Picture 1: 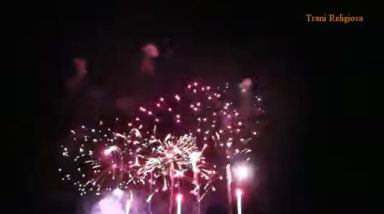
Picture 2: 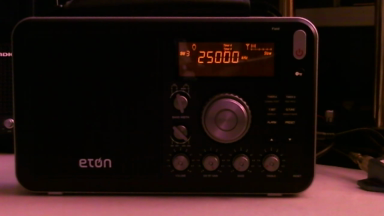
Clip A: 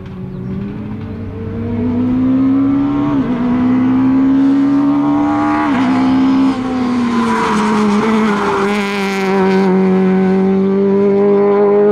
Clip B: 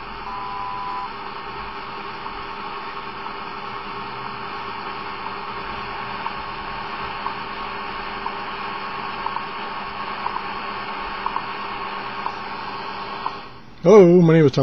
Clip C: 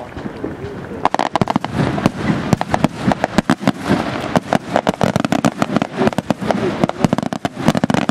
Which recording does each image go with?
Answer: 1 C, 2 B